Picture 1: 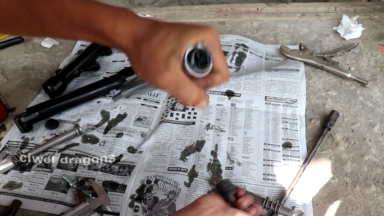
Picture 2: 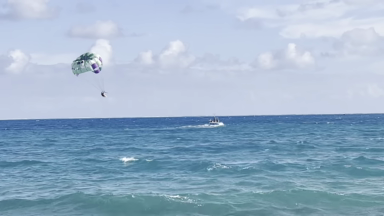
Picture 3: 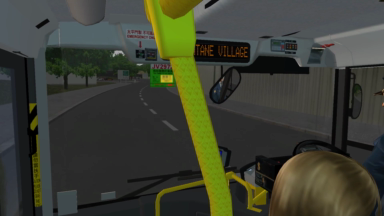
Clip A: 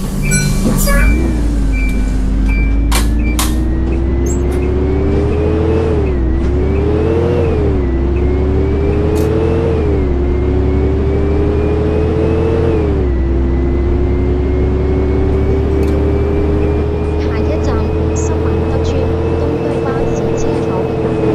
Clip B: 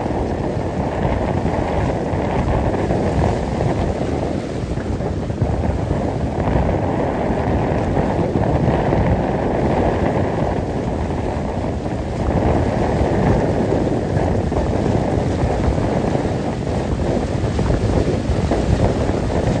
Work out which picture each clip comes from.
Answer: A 3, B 2